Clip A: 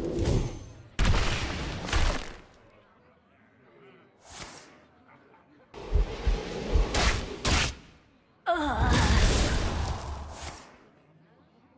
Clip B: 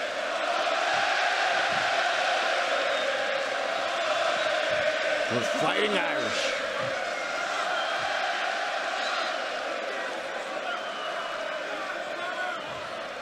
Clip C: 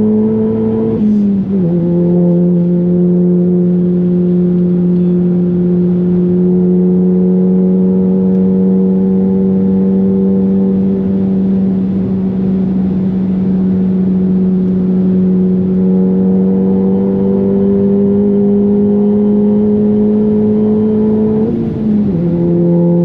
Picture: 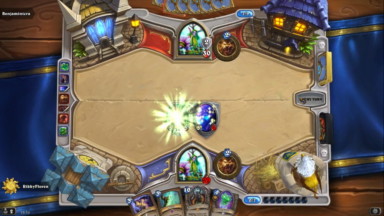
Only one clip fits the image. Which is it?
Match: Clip A